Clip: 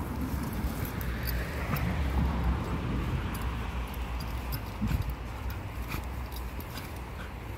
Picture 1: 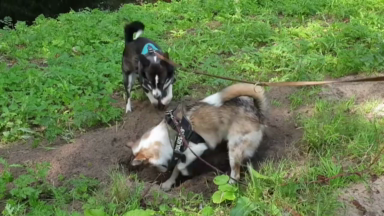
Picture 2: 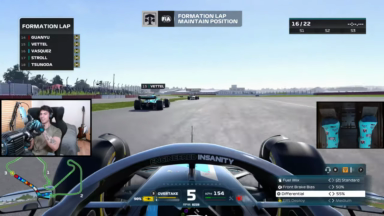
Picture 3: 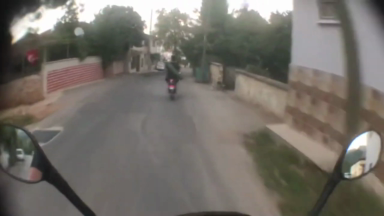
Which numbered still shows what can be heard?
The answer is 1